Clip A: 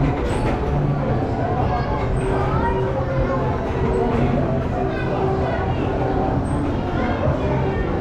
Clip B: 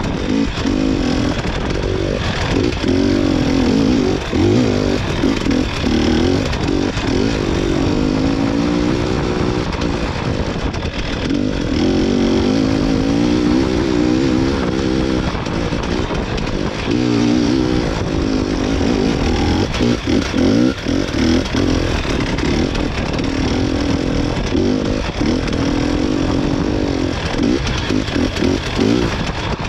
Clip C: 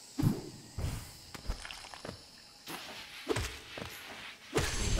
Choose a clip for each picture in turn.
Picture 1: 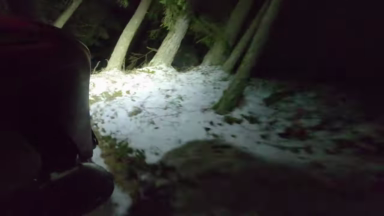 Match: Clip B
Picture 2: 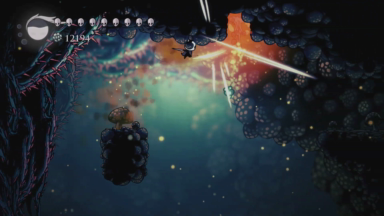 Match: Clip C